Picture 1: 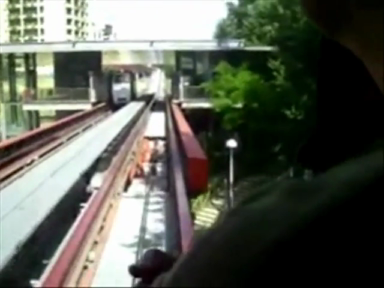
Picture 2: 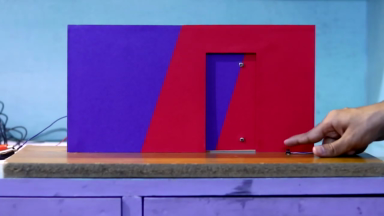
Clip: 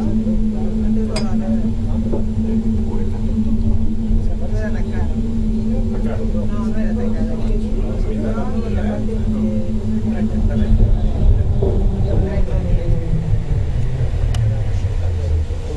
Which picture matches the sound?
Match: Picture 1